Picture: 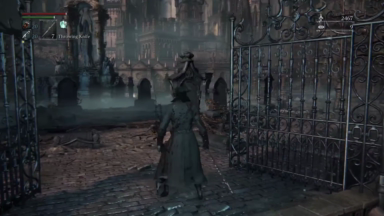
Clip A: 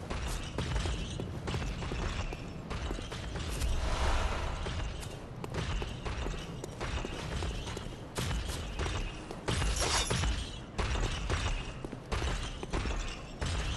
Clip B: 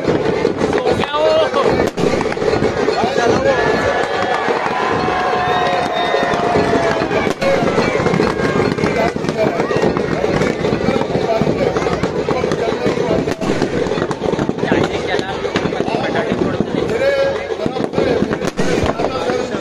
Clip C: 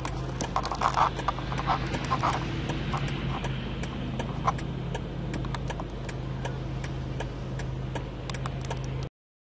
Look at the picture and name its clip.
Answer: A